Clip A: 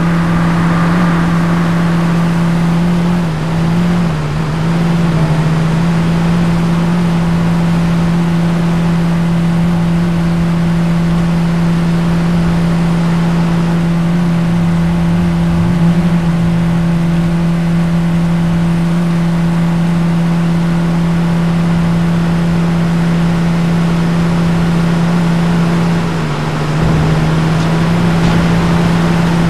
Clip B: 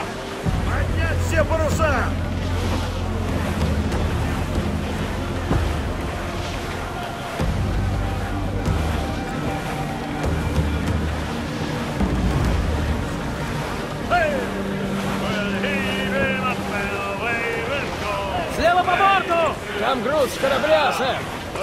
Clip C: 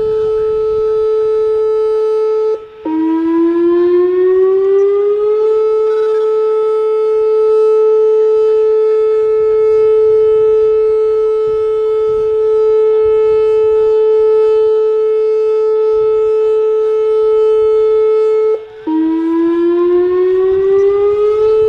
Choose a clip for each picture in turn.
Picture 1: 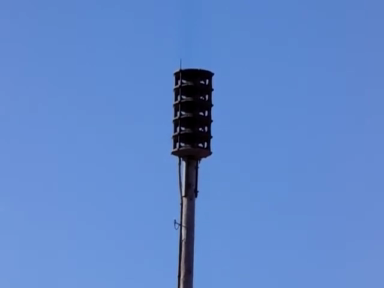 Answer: C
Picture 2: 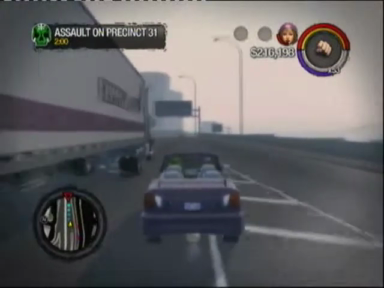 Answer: A